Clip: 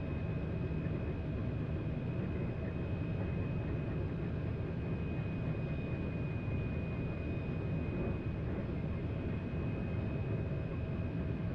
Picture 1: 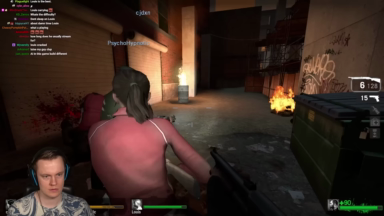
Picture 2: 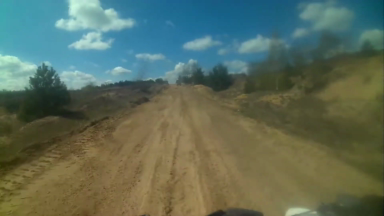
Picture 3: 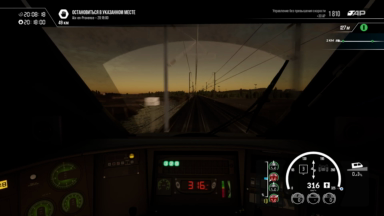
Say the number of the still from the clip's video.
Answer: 3